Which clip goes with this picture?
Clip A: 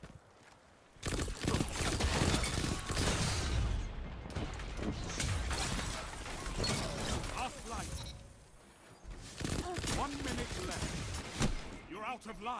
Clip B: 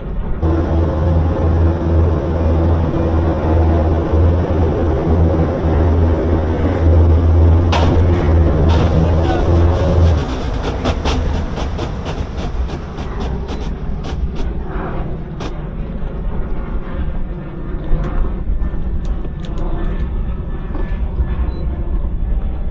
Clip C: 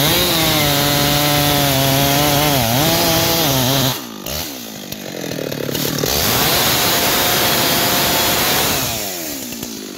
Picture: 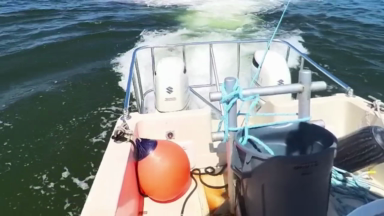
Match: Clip B